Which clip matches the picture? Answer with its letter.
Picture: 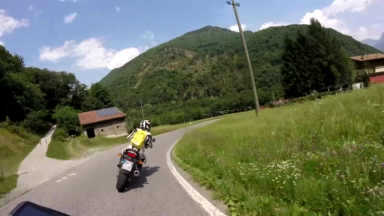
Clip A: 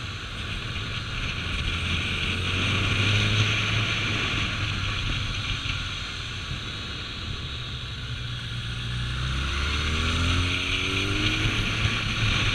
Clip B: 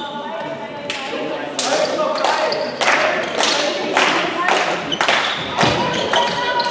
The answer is A